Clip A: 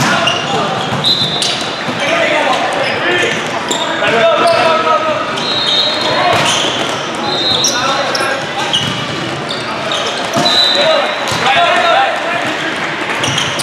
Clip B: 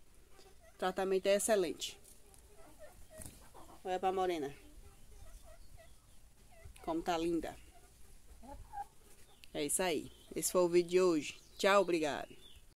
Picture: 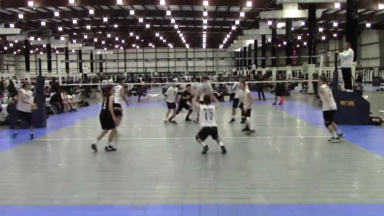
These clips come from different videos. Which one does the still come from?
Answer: A